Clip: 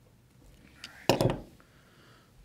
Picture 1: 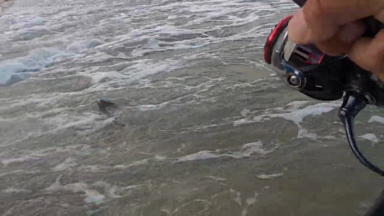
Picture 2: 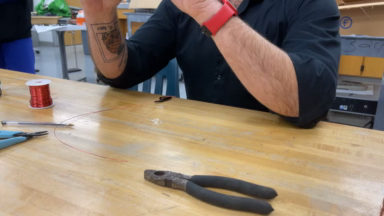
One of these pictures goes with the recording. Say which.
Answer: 2